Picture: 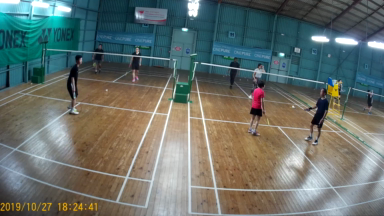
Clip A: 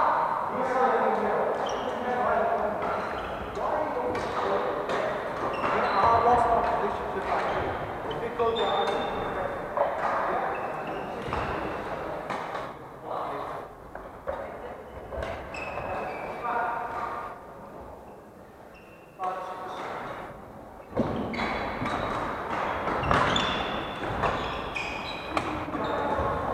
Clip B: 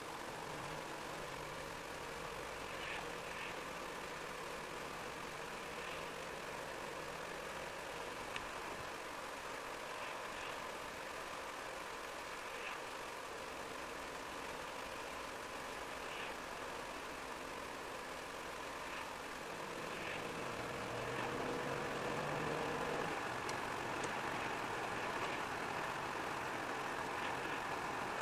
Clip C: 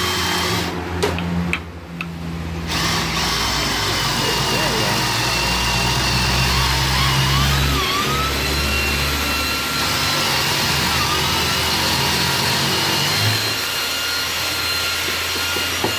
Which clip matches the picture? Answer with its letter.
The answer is A